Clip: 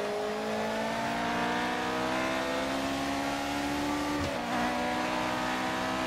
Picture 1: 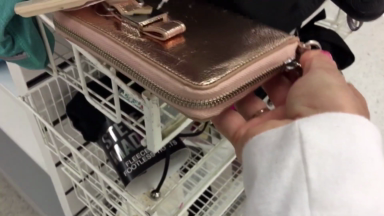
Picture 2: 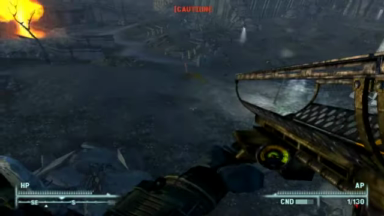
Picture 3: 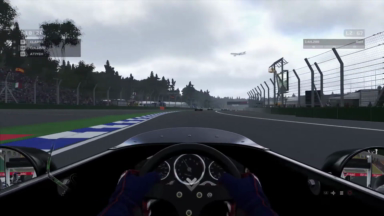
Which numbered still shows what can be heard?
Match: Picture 3